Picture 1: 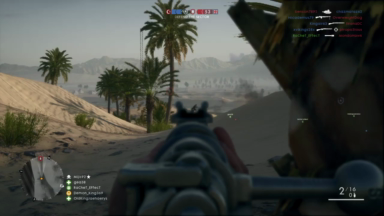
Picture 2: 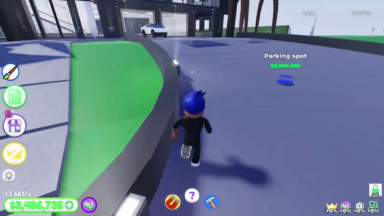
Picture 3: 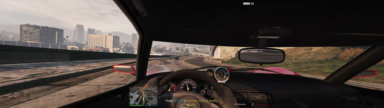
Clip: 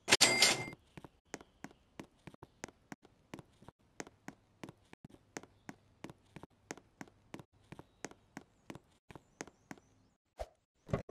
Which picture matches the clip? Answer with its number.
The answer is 2